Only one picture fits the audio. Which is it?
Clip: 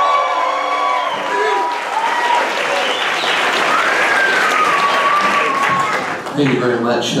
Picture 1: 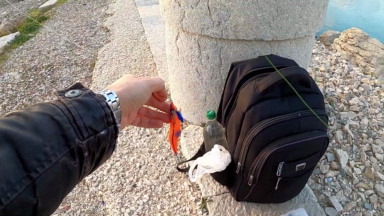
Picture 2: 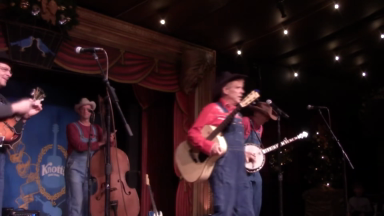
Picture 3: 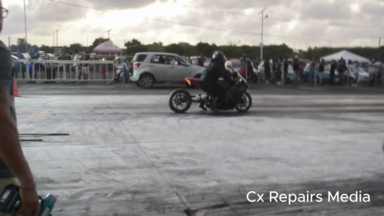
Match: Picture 2